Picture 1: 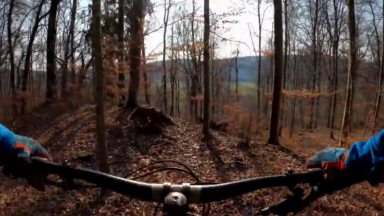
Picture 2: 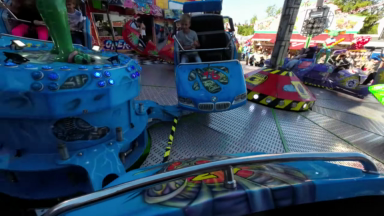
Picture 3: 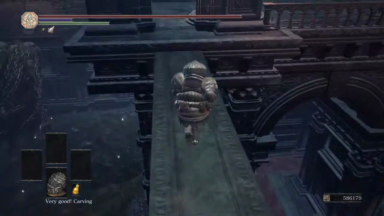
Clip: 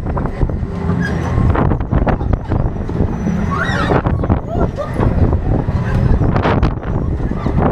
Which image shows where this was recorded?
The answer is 2